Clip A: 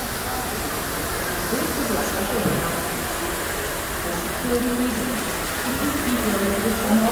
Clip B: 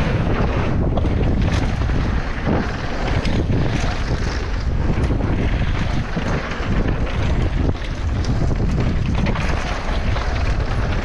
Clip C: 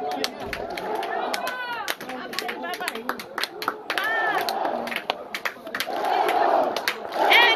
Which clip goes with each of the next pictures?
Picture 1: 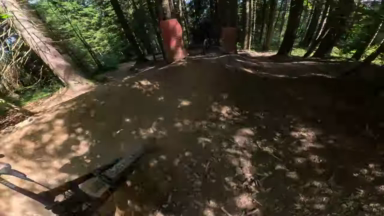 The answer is B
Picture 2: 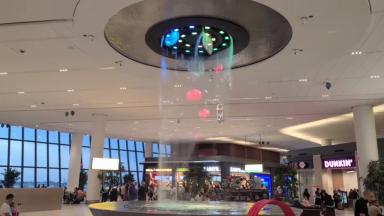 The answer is A